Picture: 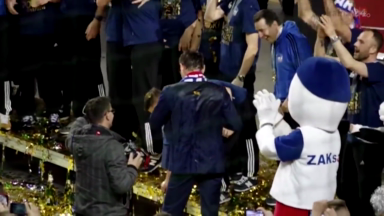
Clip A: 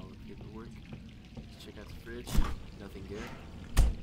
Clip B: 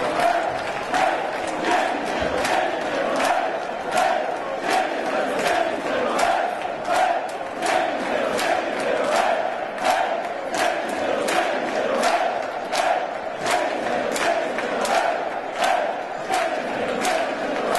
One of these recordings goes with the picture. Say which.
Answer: B